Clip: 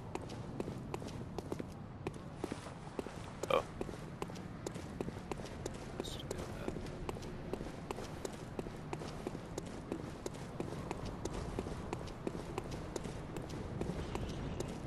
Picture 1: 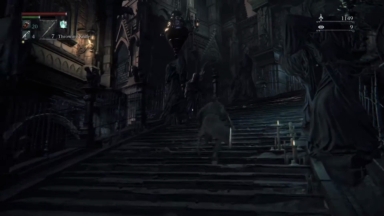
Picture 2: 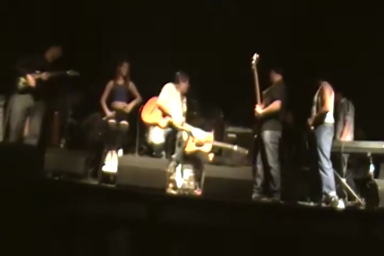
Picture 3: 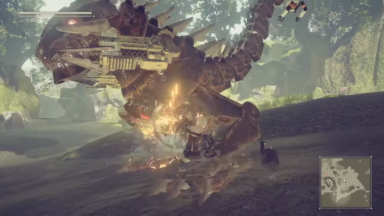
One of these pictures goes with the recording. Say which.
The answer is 1